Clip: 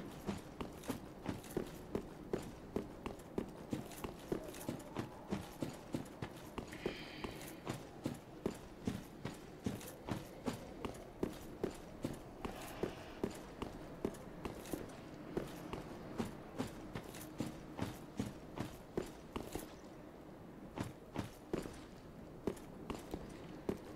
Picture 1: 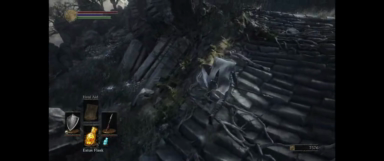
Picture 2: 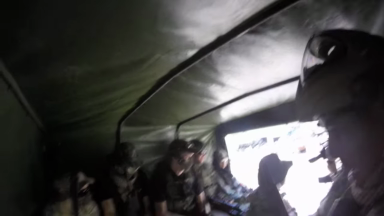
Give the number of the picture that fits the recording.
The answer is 1